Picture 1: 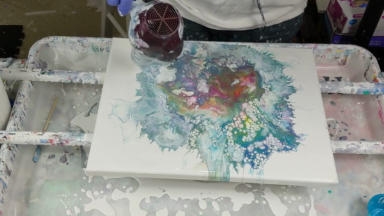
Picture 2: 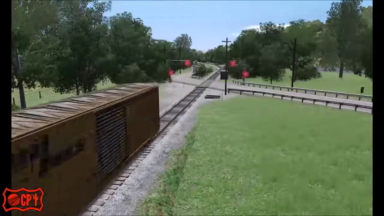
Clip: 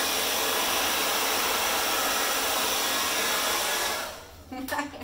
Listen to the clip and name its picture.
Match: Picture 1